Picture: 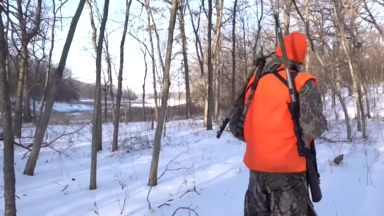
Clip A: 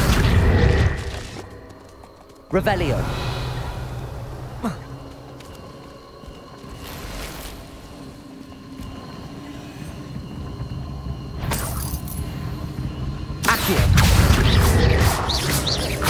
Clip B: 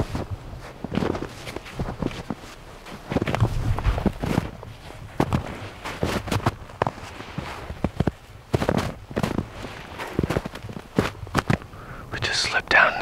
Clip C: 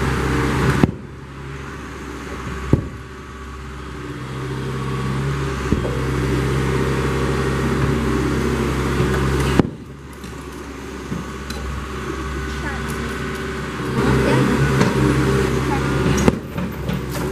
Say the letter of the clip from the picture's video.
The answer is B